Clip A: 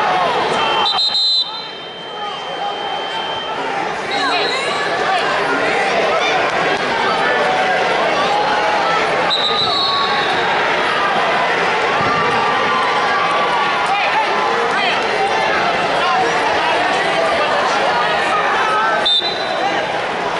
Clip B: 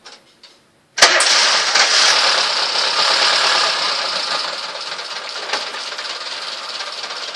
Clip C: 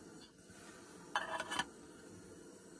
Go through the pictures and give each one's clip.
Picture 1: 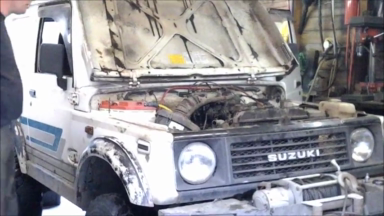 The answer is B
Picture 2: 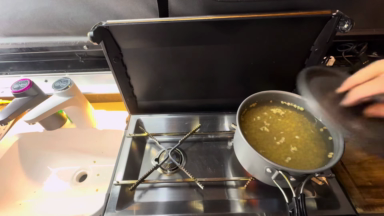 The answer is C